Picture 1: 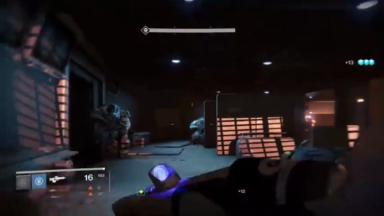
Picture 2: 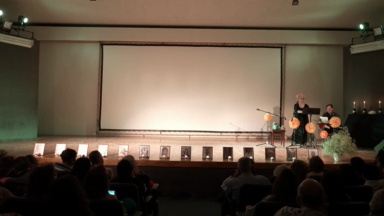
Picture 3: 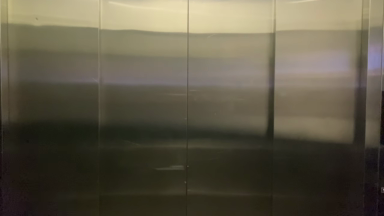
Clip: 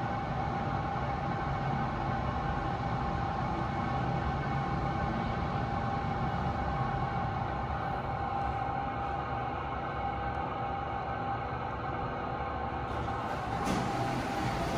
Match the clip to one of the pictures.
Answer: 3